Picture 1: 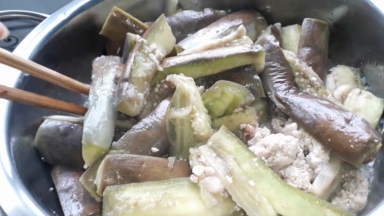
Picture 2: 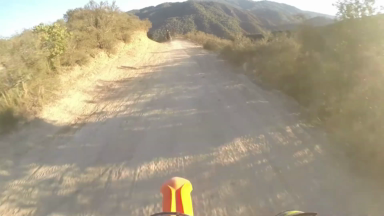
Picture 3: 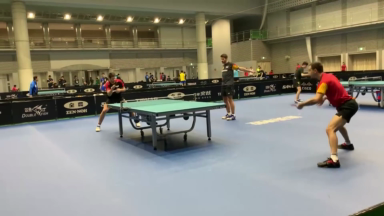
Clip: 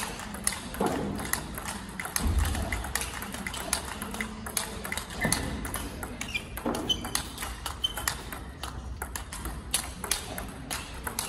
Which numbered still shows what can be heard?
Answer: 3